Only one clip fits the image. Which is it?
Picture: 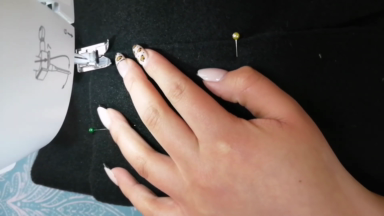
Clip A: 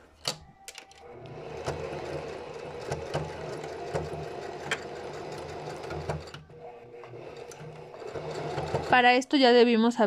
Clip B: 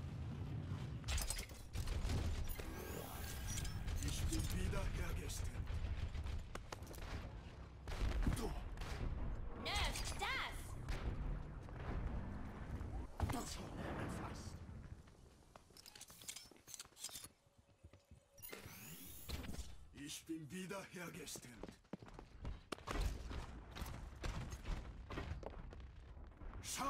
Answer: A